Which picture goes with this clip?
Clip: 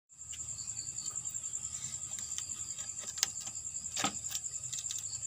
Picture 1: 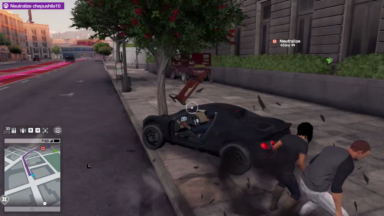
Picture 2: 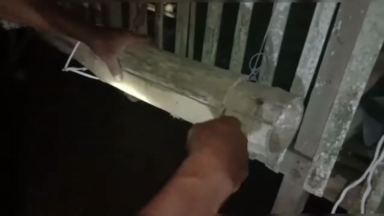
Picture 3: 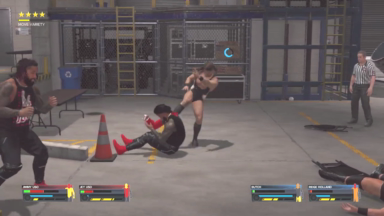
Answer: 2